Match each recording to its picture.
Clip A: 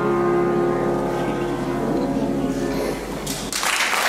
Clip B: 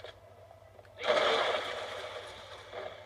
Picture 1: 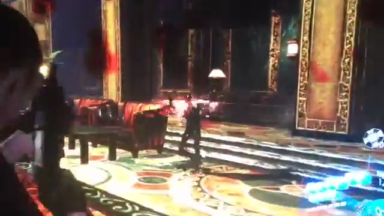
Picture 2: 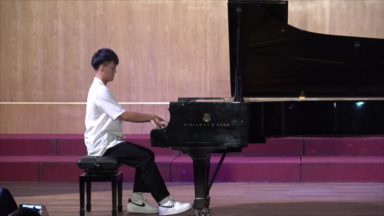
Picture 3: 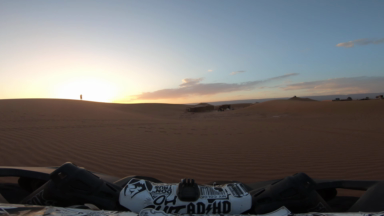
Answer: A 2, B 1